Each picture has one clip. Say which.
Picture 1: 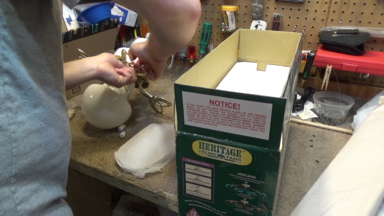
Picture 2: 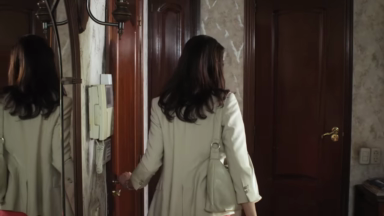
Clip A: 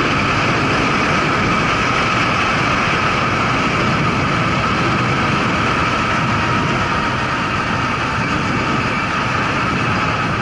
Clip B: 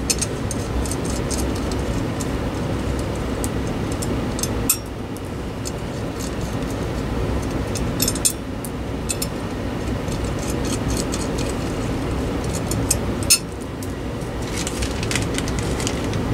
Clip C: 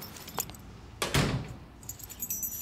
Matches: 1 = B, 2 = C